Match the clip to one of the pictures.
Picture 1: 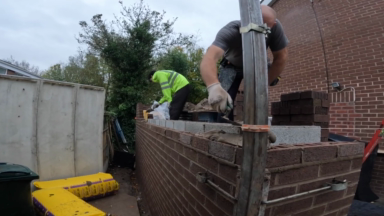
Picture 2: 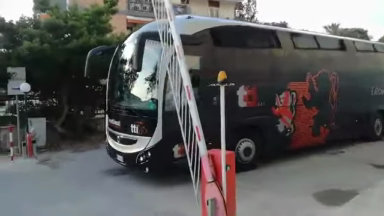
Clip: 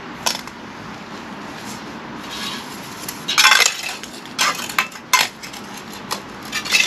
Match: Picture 1